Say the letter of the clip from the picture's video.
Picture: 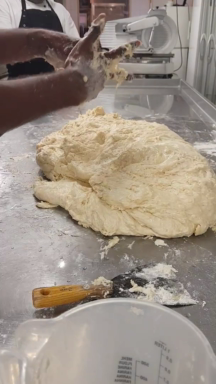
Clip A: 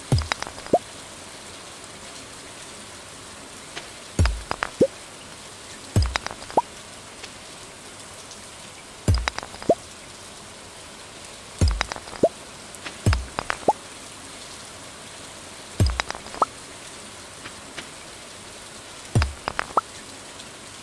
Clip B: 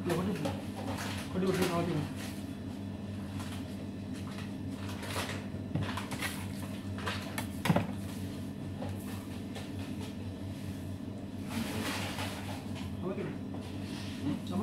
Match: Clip B